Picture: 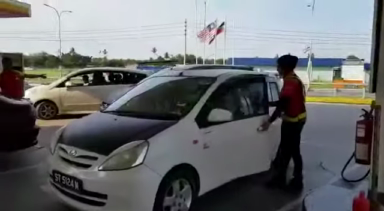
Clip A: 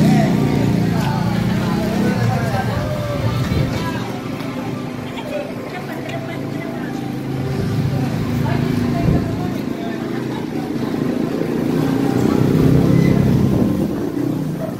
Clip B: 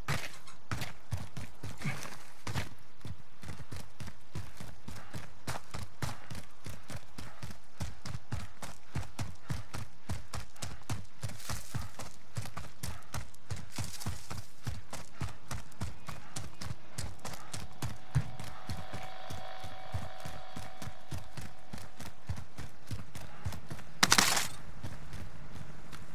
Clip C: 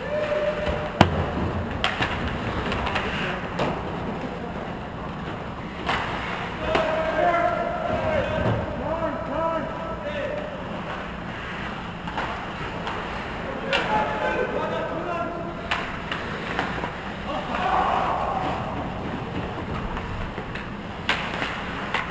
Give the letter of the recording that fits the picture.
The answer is A